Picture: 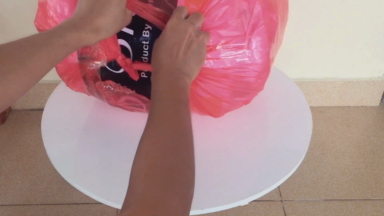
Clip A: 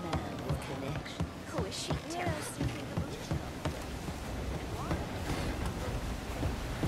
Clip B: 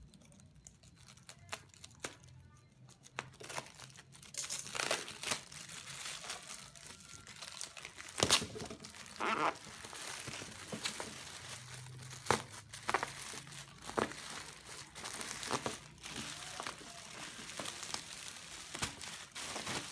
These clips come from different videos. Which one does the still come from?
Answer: B